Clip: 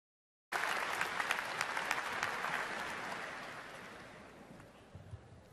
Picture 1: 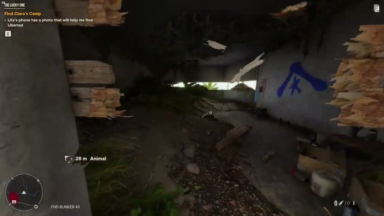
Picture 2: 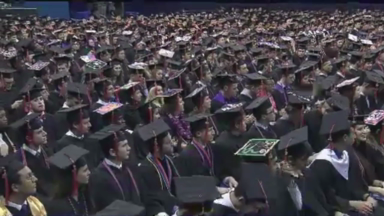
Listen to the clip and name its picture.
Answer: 2